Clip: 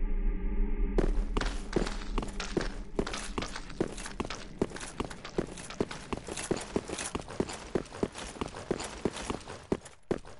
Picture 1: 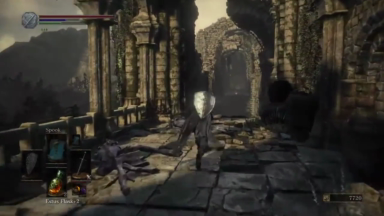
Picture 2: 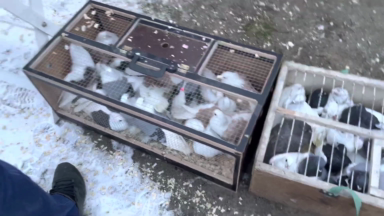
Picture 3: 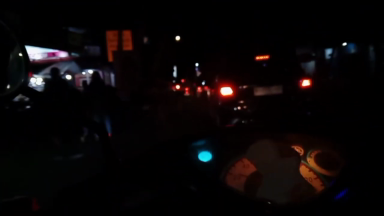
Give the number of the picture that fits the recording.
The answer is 1